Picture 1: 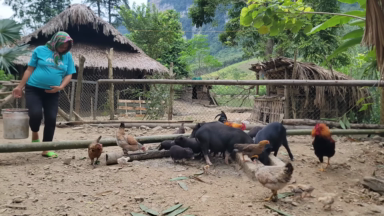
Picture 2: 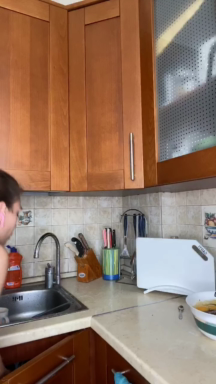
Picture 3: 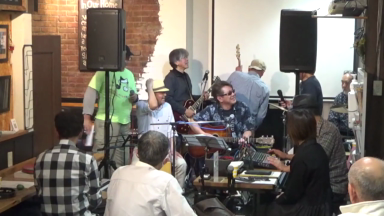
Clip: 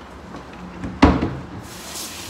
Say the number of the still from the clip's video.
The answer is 2